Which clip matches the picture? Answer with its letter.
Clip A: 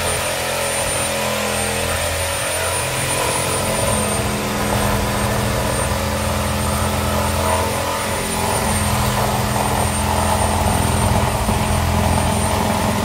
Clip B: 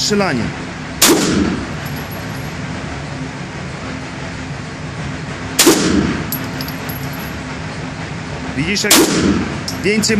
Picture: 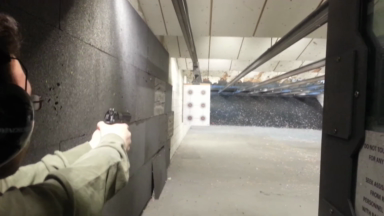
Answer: B